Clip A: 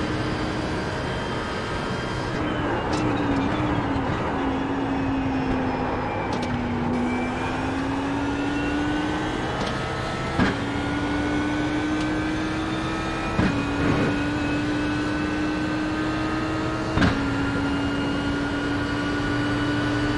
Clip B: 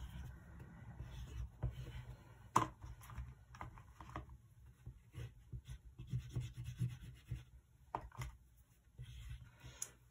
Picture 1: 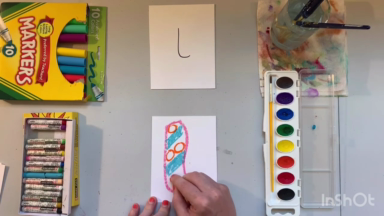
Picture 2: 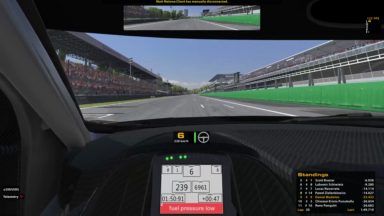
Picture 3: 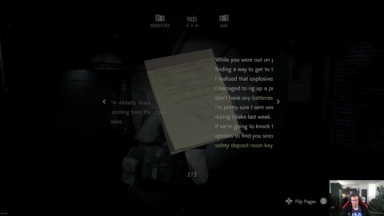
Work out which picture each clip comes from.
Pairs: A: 2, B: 1